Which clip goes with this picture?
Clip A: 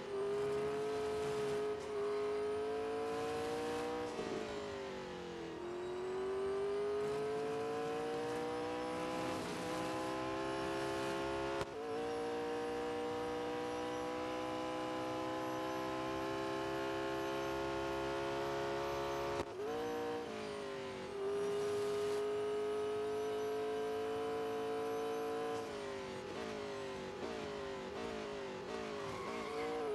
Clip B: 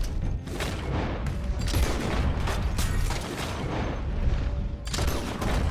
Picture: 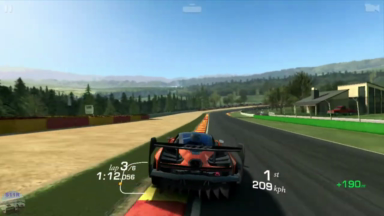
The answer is A